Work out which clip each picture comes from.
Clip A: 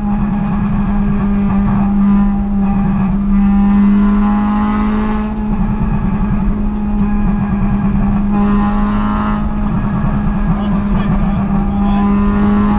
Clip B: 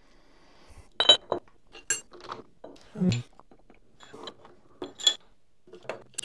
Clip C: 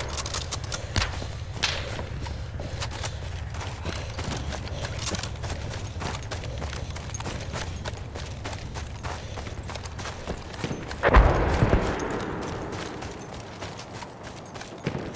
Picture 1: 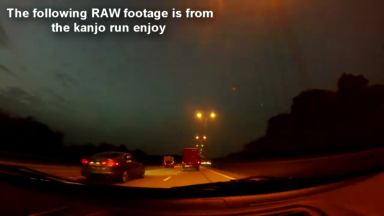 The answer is A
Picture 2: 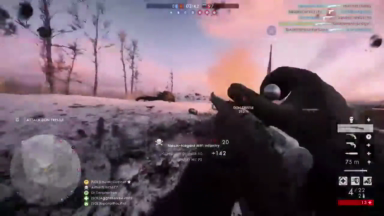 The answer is C